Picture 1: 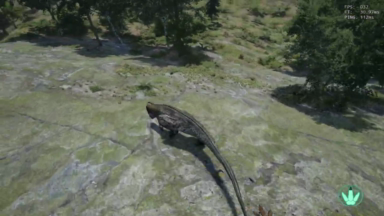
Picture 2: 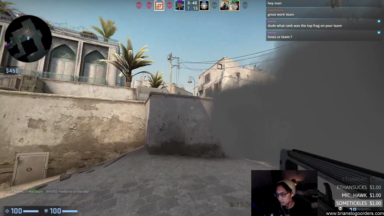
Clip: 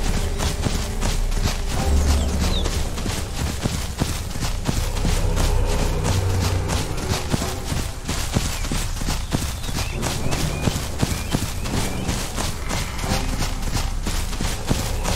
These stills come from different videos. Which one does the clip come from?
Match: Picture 1